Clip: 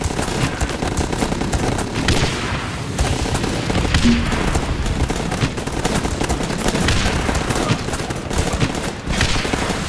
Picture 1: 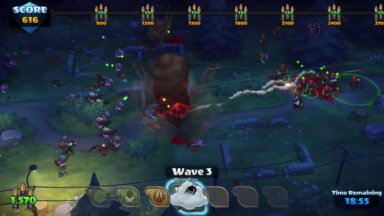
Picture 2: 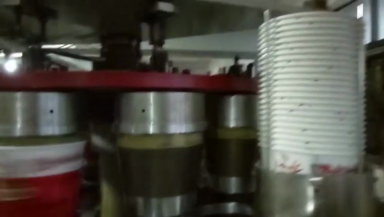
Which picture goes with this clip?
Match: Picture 1